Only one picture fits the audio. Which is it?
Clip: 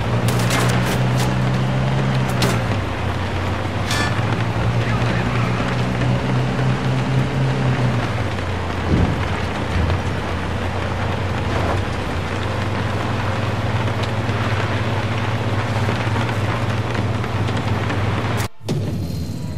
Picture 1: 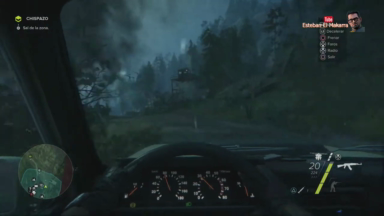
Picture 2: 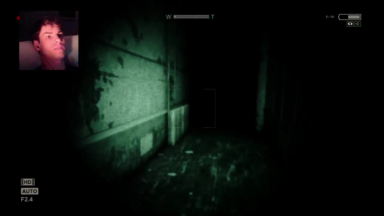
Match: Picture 1